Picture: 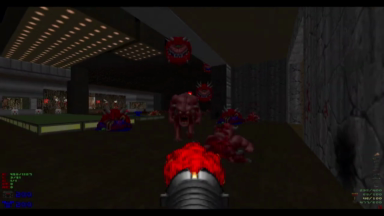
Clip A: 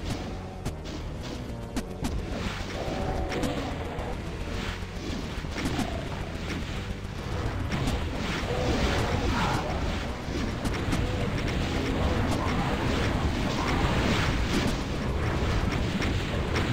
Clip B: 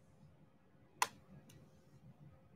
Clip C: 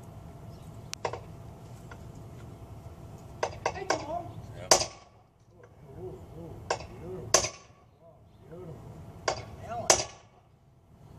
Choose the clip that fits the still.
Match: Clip A